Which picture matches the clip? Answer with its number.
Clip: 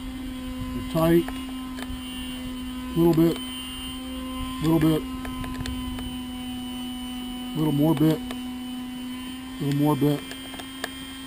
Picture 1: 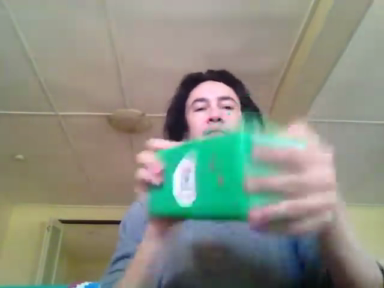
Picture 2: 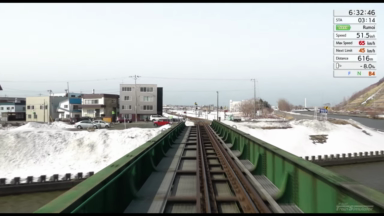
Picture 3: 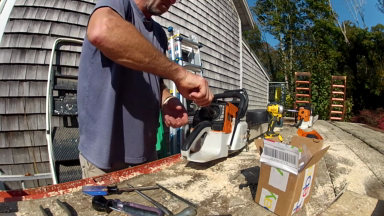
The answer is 3